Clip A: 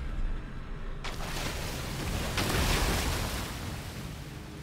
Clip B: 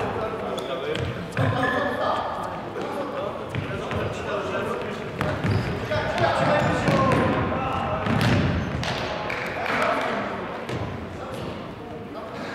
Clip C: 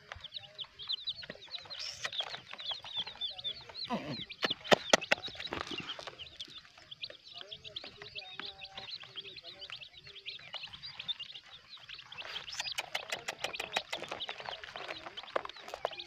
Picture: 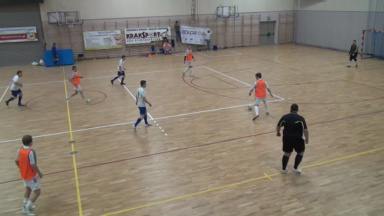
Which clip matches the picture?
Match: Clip B